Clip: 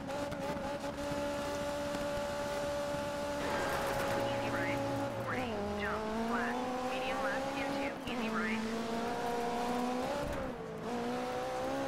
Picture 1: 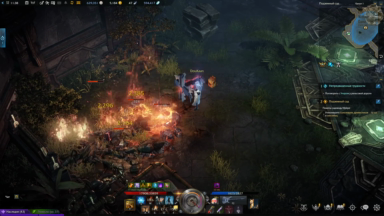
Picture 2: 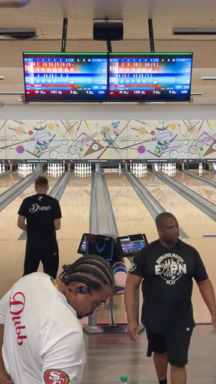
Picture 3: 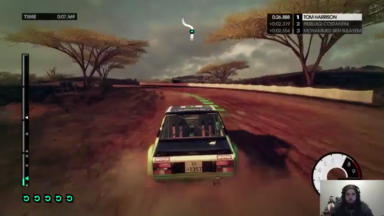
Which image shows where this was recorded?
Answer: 3